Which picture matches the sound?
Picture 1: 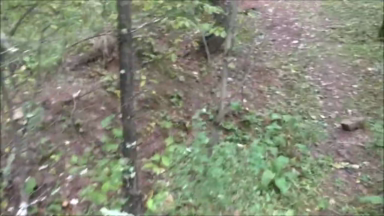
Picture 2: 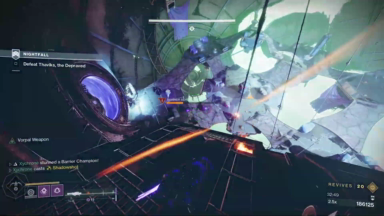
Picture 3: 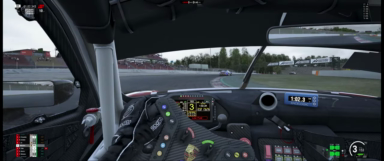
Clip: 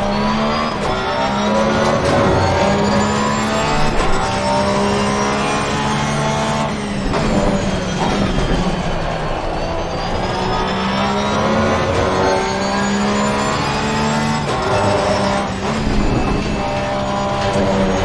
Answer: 3